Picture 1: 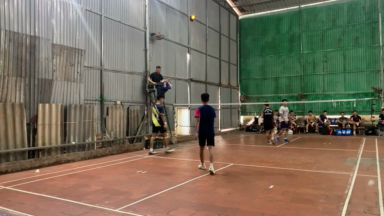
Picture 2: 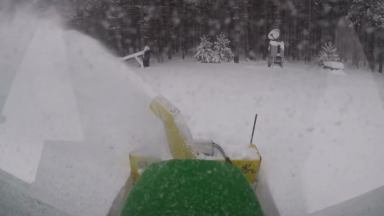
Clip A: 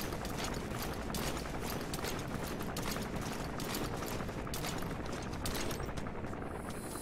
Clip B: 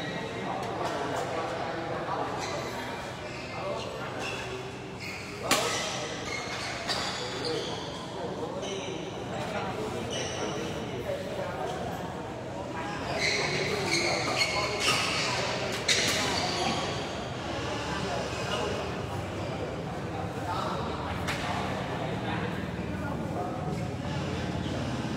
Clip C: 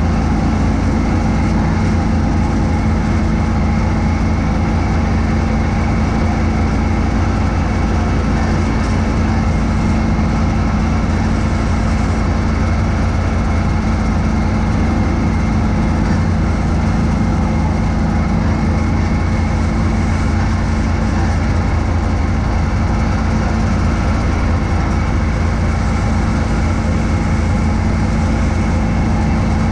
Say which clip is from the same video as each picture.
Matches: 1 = B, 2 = C